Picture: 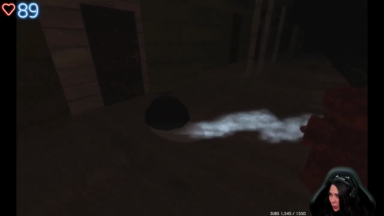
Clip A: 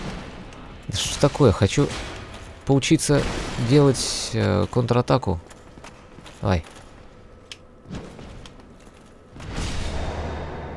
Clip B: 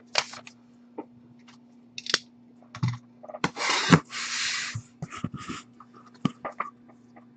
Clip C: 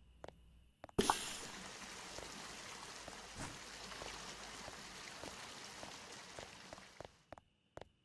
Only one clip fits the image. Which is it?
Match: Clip C